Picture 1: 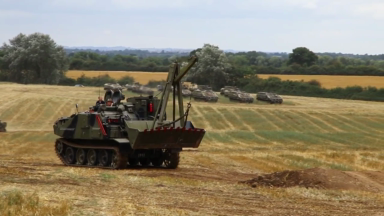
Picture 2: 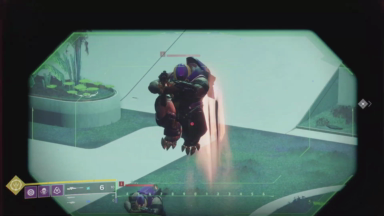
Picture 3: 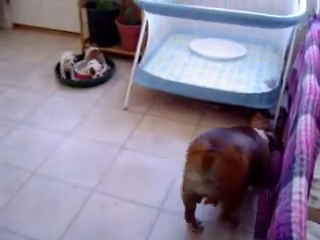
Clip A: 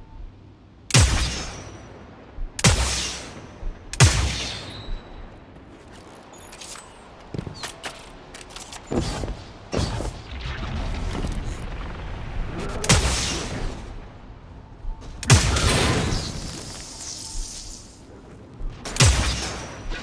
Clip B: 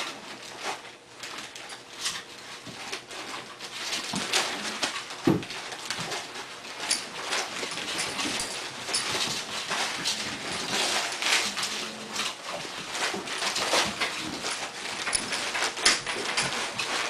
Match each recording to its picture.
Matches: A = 2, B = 3